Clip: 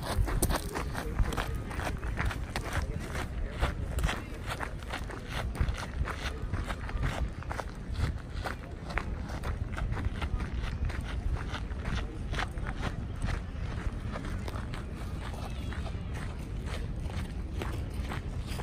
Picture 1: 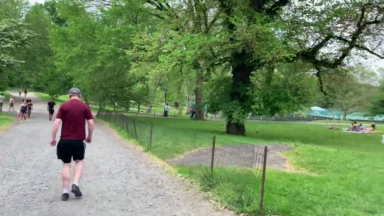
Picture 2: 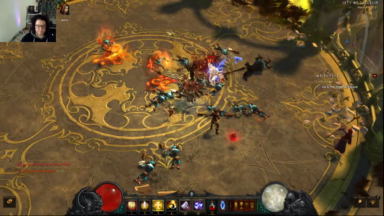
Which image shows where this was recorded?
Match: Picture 1